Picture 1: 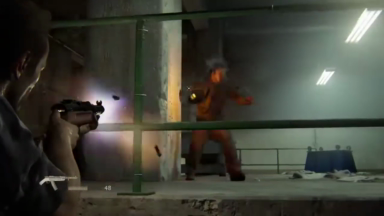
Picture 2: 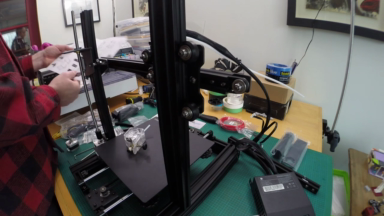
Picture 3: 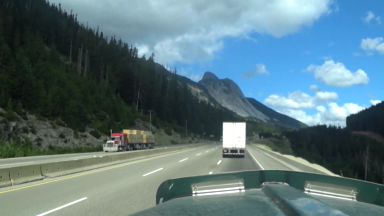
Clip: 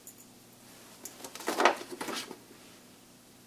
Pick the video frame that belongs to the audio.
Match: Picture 2